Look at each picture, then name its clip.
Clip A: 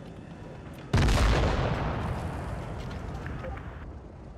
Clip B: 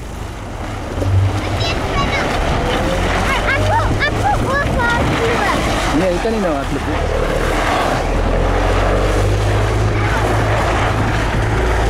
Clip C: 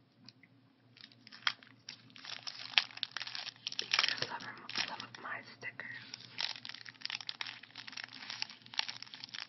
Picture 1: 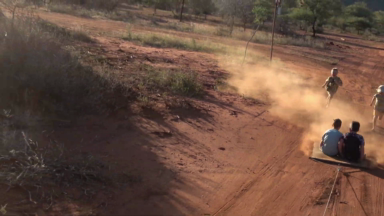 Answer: B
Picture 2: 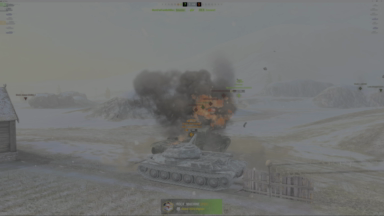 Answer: A